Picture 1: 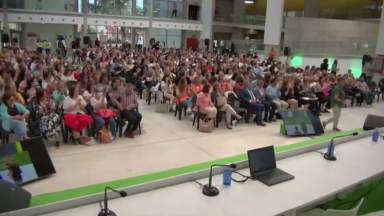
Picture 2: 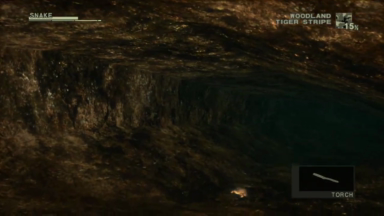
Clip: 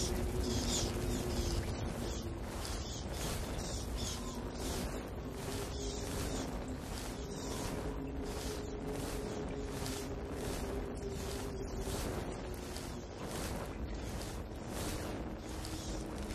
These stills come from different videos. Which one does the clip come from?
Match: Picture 2